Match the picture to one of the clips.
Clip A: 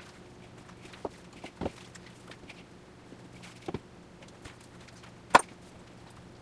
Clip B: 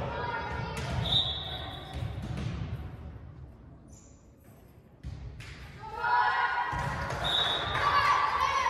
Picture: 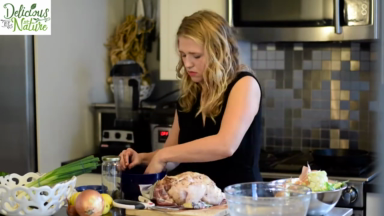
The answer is A